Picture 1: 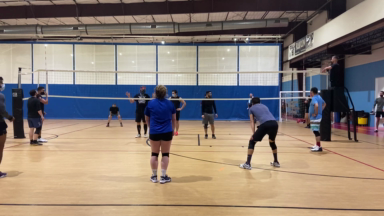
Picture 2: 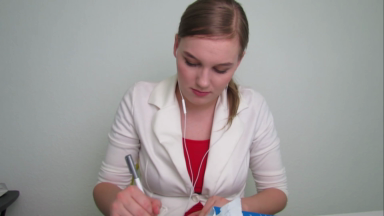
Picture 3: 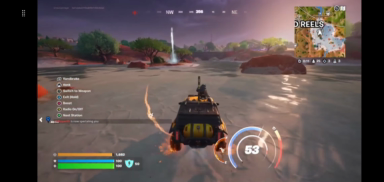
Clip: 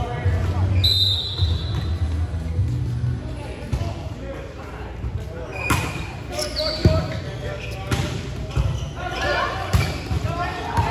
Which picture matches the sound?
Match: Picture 1